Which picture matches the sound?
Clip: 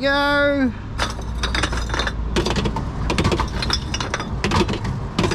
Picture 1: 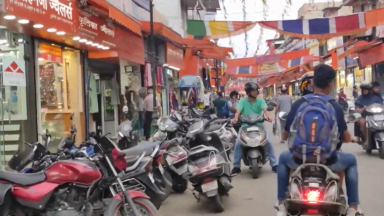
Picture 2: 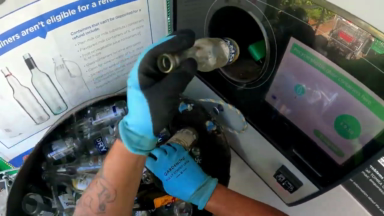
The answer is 2